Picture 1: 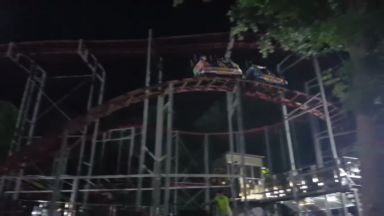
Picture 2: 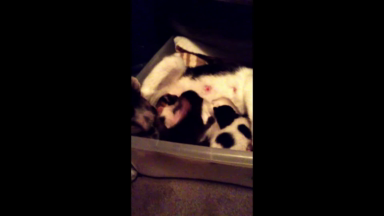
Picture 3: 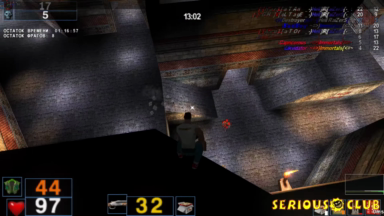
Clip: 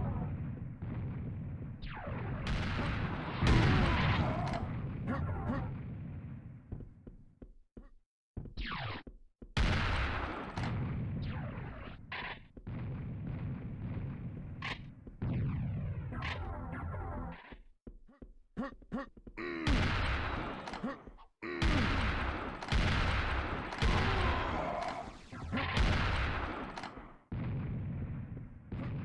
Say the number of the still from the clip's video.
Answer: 3